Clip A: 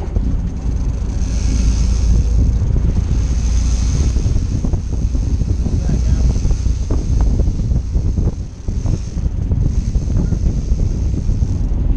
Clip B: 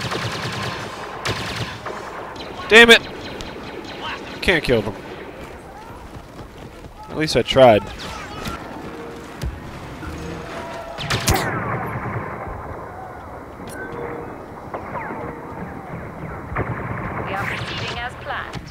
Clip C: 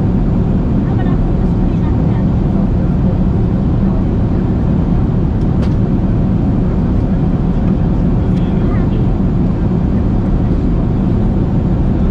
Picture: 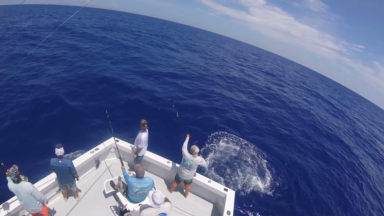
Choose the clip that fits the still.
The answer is A